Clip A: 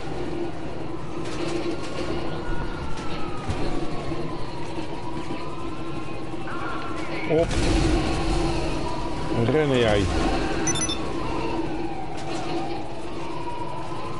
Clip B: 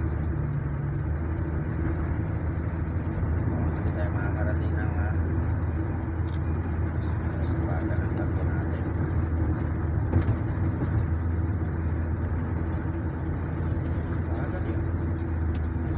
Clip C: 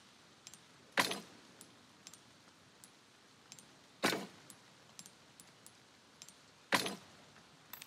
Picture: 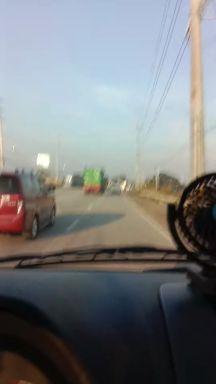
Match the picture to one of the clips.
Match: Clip B